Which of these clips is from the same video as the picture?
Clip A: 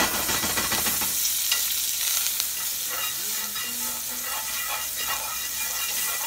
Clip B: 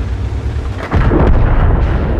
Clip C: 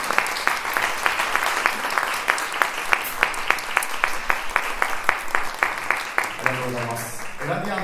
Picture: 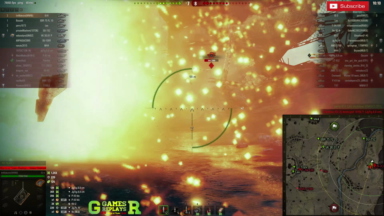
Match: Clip B